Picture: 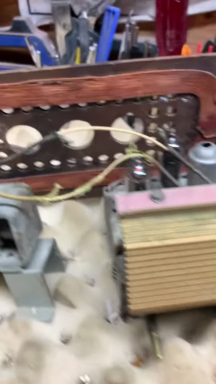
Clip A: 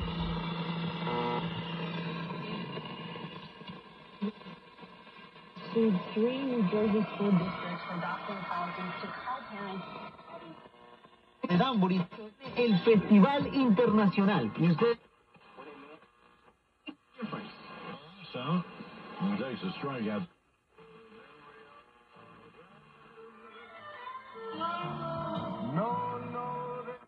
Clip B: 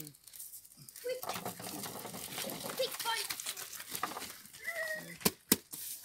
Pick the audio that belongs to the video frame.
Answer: A